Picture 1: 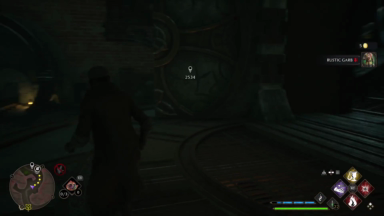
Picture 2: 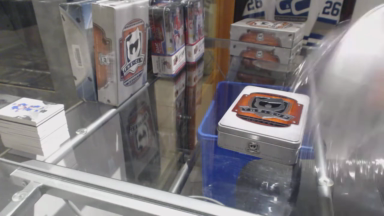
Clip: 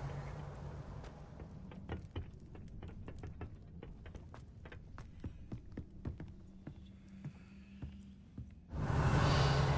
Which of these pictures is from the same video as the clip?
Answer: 1